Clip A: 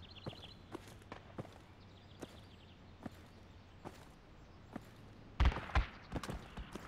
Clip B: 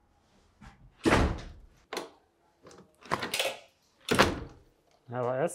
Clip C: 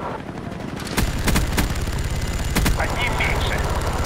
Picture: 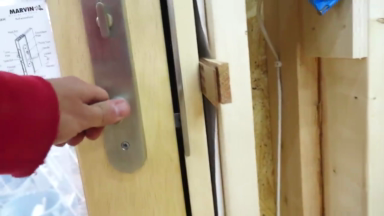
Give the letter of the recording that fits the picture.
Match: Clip B